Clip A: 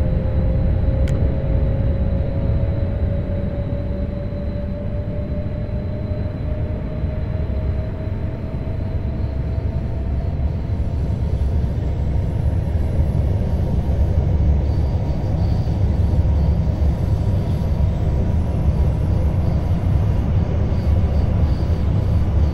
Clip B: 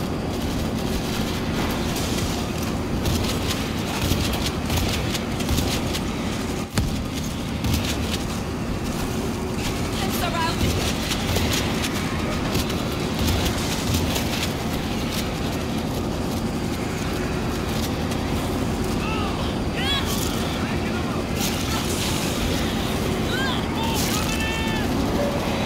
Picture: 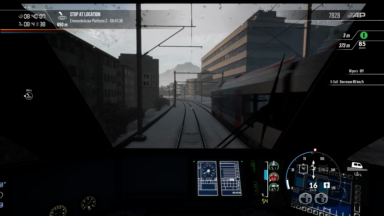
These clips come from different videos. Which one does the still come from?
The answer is A